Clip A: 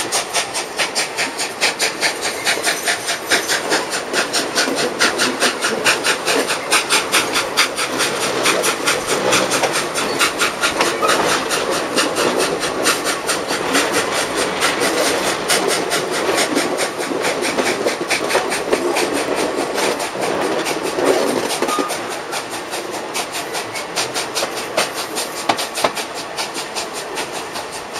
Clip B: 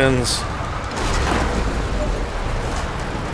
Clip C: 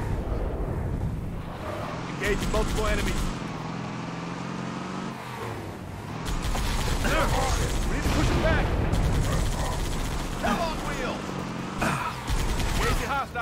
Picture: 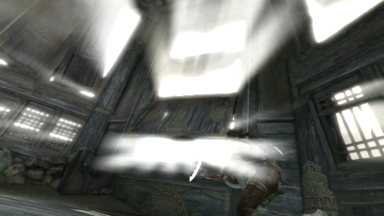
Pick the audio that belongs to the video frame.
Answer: B